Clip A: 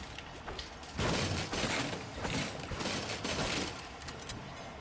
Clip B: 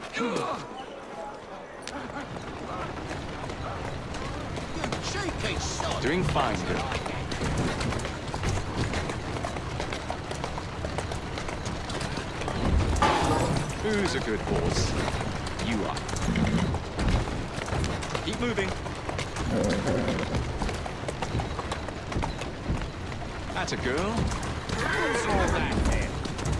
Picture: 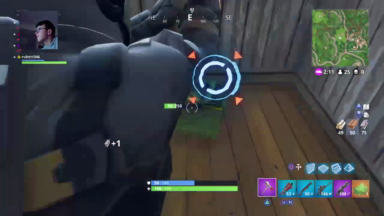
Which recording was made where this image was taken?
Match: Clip A